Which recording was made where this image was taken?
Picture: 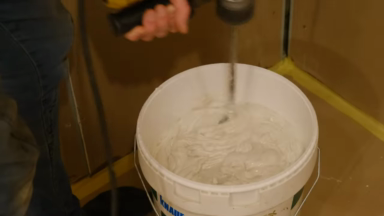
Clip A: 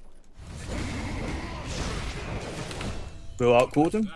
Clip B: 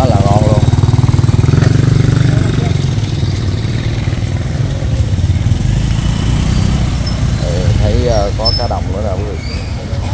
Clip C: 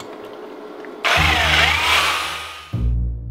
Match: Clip C